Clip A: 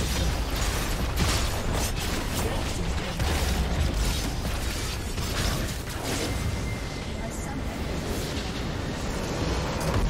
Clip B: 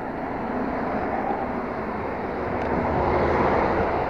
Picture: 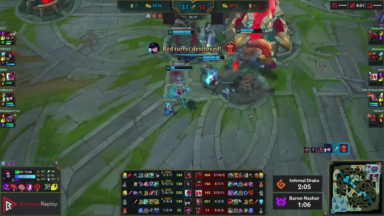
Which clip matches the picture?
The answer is A